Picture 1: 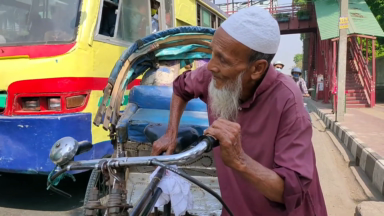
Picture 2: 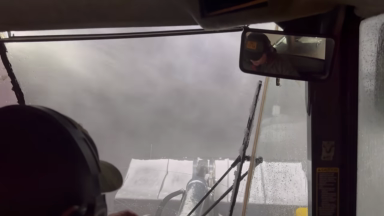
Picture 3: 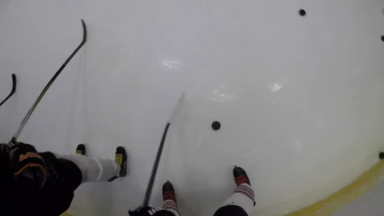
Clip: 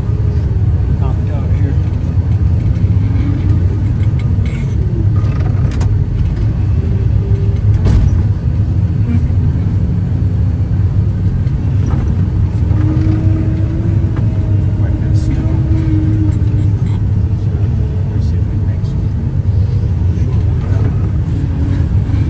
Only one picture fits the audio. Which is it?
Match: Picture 2